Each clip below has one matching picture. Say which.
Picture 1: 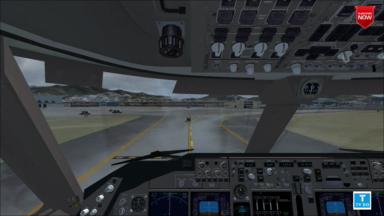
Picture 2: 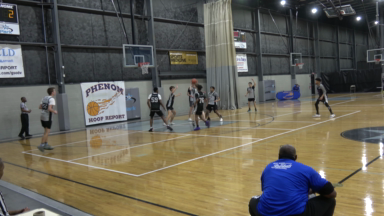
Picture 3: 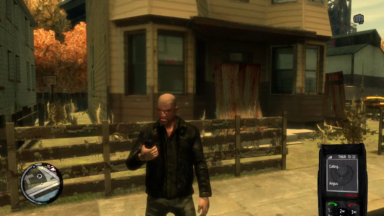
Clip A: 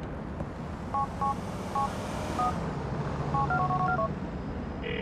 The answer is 3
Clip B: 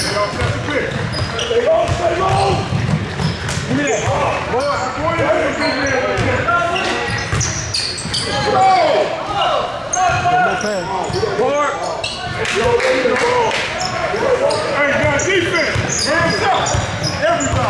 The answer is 2